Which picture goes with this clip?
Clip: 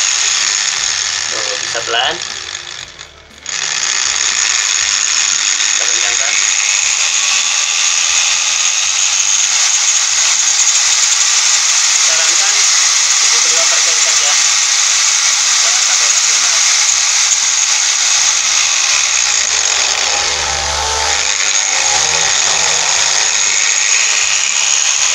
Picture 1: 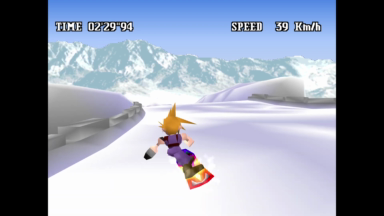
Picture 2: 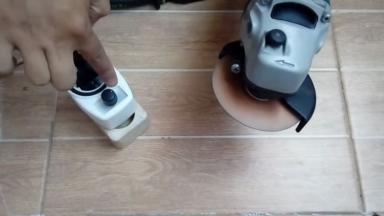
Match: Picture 2